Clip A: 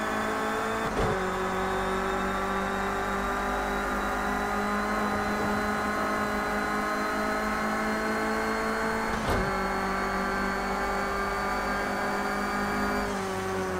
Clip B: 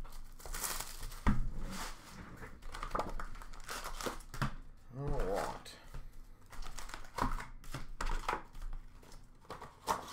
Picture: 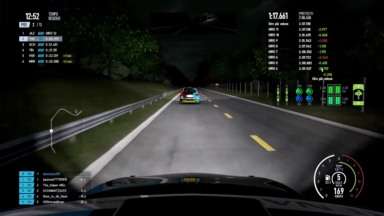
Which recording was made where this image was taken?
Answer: A